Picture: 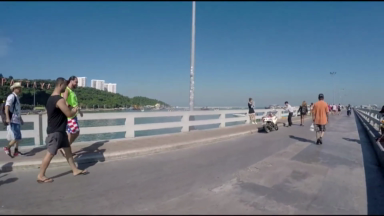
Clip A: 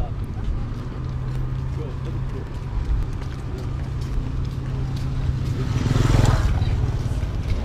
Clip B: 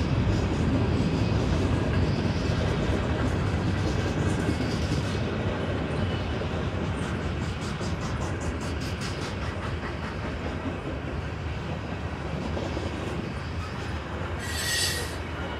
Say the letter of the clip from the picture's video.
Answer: A